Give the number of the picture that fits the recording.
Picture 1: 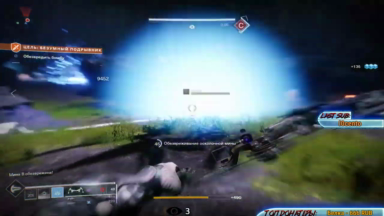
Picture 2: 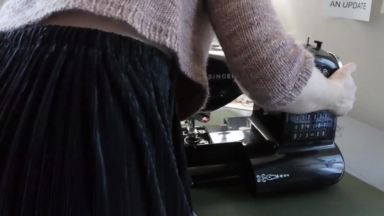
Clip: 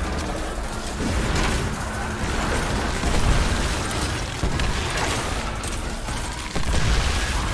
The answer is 1